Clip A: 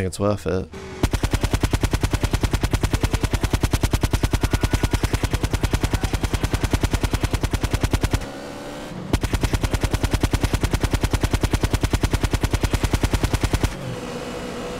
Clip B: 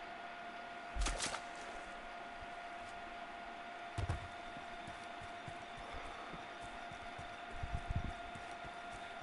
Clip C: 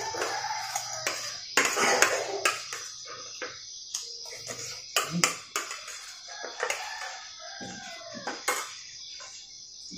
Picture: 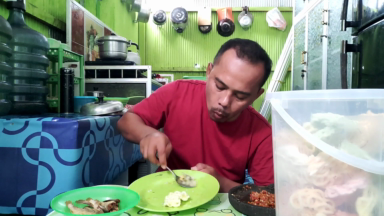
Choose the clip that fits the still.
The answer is C